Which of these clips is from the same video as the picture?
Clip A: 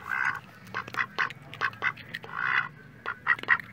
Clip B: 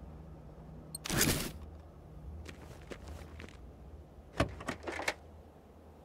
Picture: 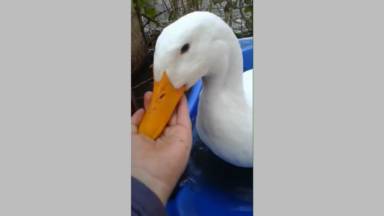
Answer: A